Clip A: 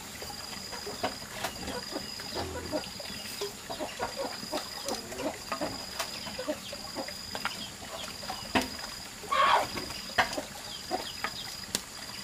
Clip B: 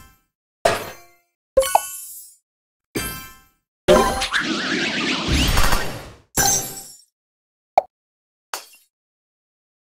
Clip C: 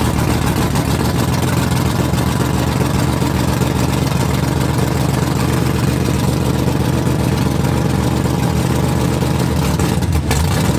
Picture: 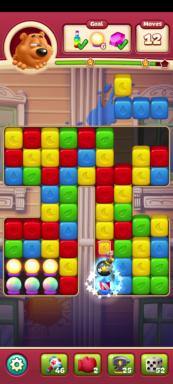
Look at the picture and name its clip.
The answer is B